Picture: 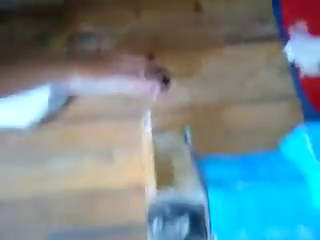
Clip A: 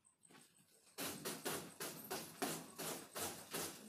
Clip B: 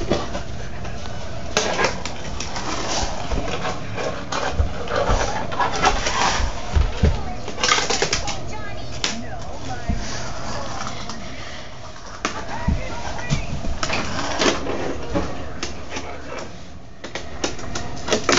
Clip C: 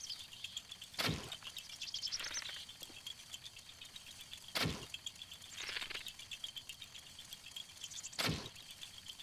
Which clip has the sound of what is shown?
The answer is B